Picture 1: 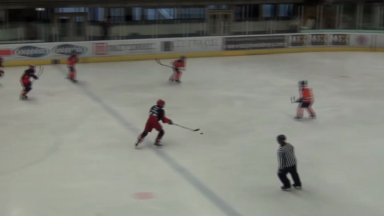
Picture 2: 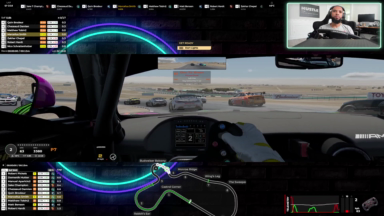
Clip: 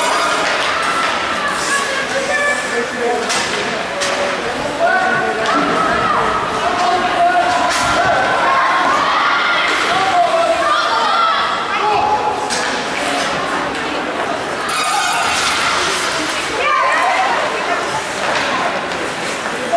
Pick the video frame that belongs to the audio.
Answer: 1